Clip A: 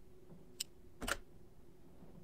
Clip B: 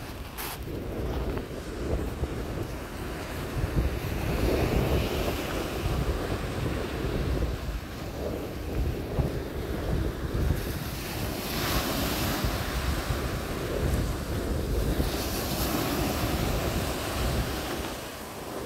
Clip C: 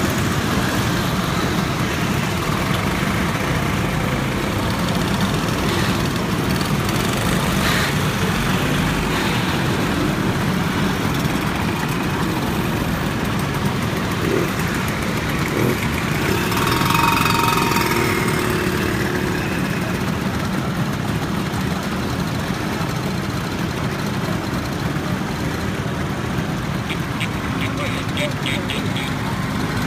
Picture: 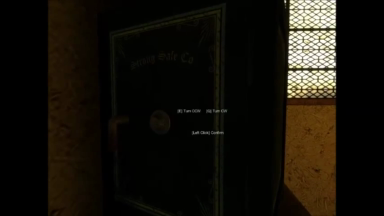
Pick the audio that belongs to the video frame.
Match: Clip A